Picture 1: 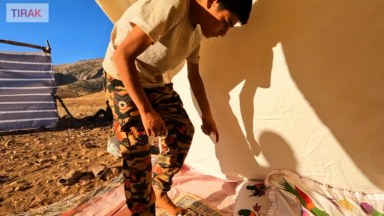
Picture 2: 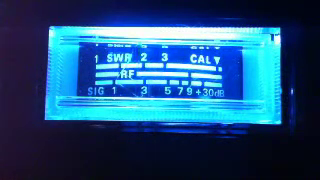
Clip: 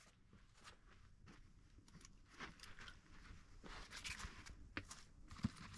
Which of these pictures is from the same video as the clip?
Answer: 1